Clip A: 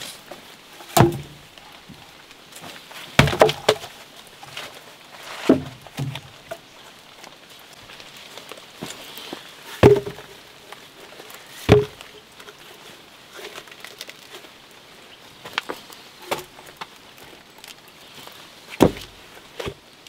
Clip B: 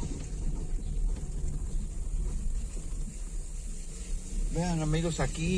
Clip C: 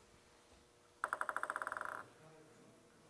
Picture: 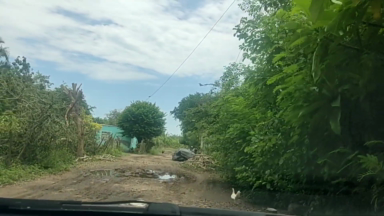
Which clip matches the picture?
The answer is B